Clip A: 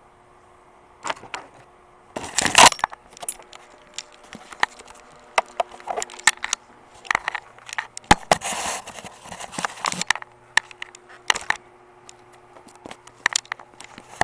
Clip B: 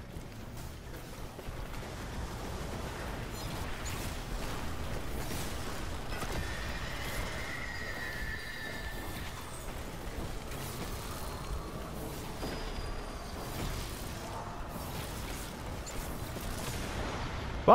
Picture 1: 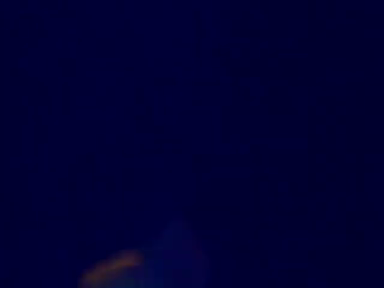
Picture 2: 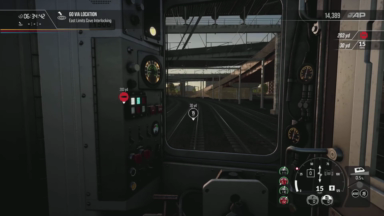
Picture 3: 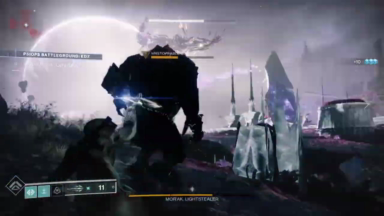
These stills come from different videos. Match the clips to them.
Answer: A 1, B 3